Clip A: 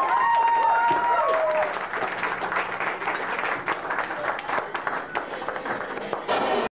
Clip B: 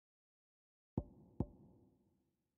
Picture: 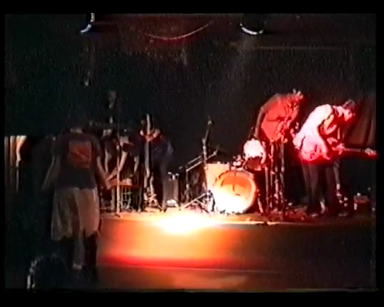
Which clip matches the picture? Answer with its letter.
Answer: A